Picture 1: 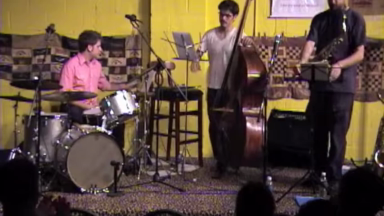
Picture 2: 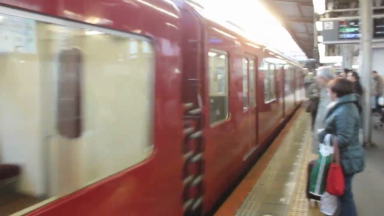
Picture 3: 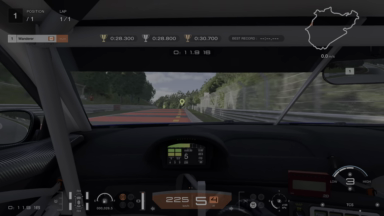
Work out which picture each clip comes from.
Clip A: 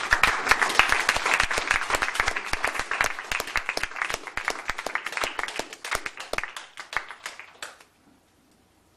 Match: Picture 1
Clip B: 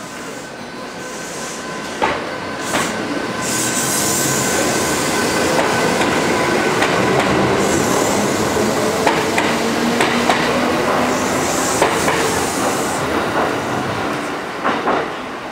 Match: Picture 2